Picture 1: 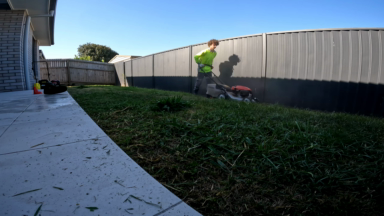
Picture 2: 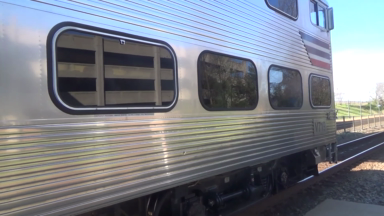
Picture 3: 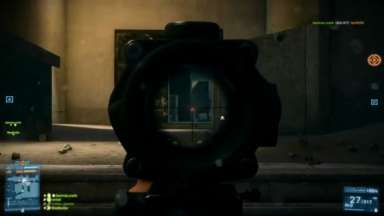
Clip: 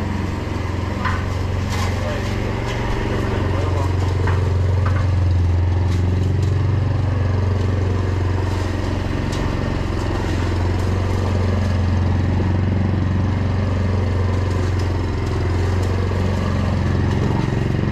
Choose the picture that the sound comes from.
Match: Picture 1